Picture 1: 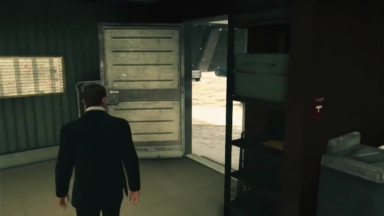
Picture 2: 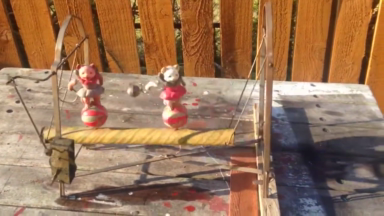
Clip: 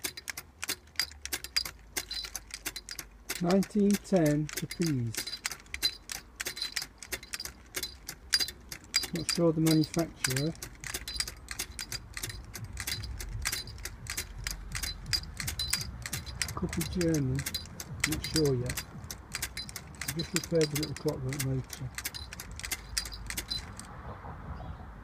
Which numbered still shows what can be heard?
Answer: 2